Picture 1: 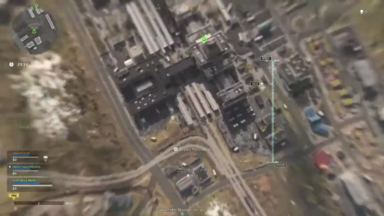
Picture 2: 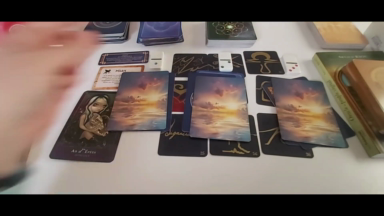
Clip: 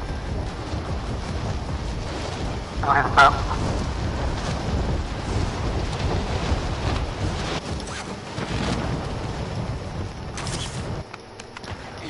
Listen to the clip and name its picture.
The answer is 1